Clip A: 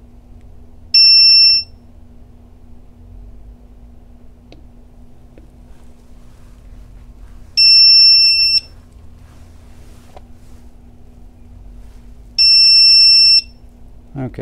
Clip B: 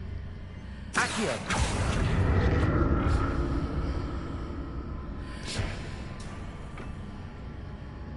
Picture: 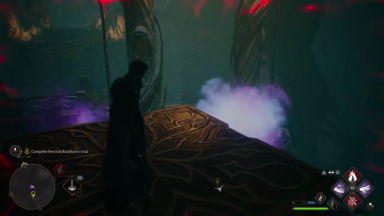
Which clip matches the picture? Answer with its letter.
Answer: B